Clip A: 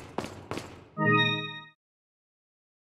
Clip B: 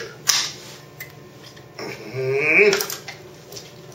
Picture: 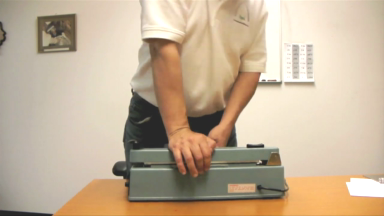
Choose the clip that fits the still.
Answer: B